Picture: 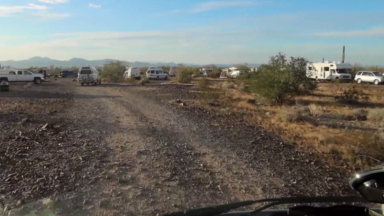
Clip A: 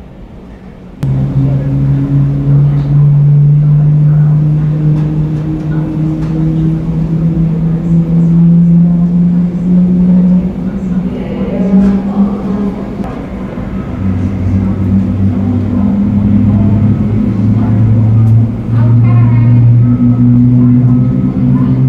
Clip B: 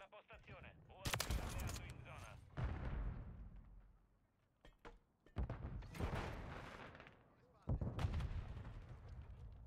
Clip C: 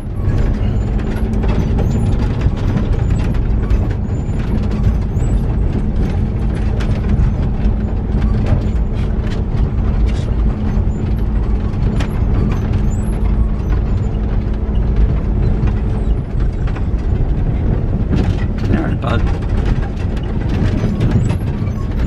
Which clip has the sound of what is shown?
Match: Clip C